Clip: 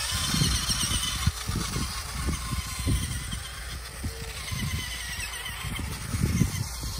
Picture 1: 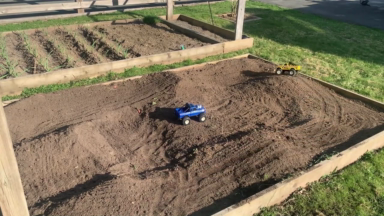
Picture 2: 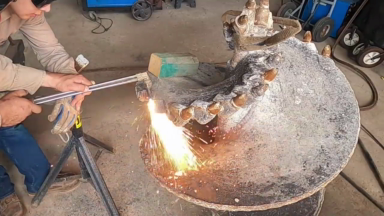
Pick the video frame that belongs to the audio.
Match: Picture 1